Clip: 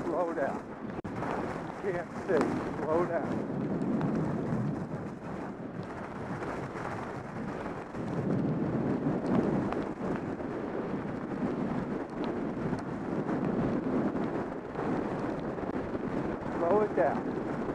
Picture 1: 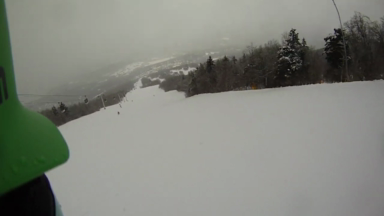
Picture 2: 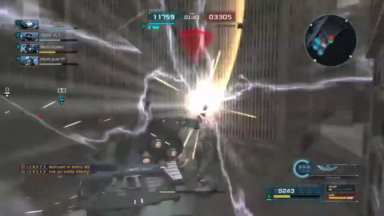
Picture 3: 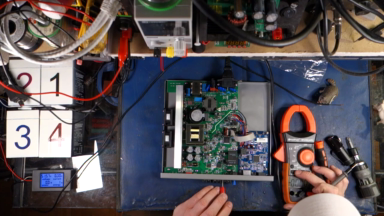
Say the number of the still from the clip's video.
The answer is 1